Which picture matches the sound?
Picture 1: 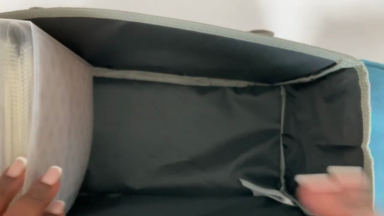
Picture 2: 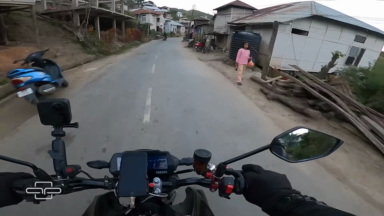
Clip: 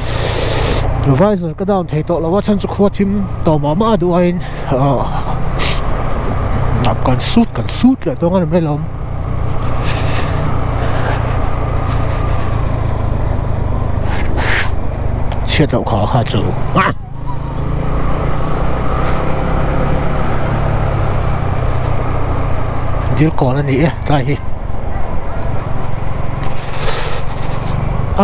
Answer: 2